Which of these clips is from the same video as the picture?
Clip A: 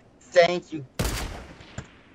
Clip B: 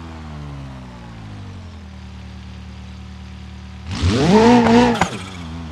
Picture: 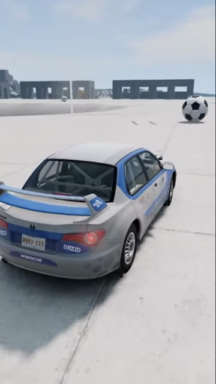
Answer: B